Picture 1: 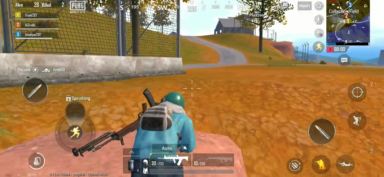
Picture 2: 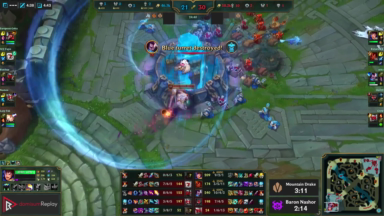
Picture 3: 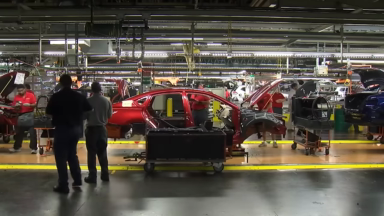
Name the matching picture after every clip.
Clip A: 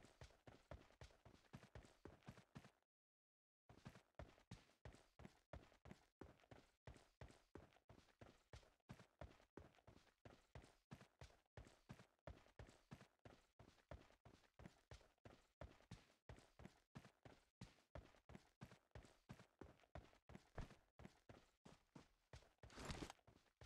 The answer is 1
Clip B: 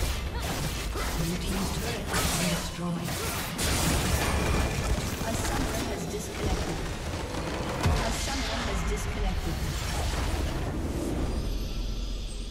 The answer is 2